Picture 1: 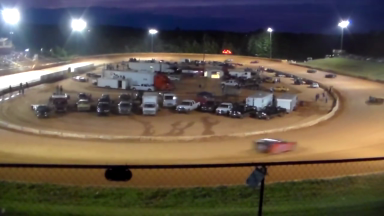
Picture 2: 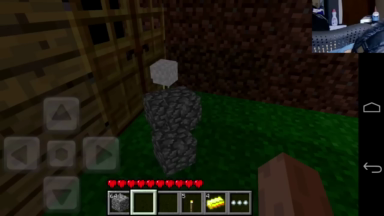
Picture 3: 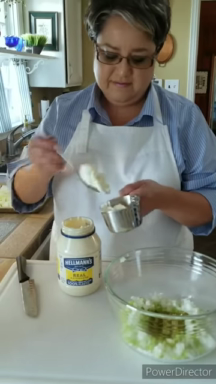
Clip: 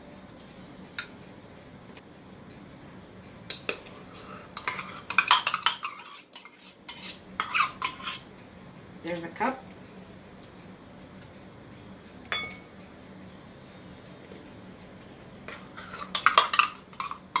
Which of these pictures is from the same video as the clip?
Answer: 3